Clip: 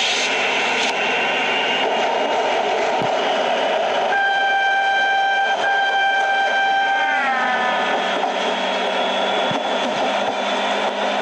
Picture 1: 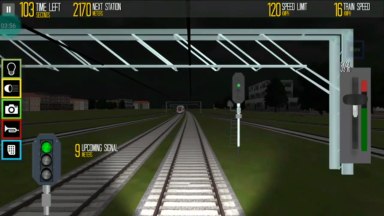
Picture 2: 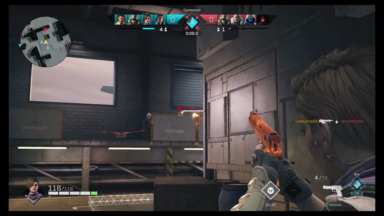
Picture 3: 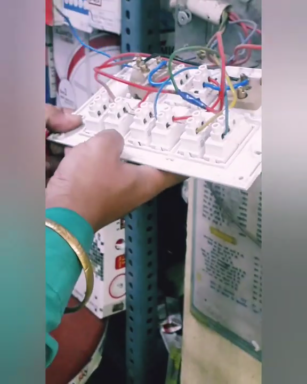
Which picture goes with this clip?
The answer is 1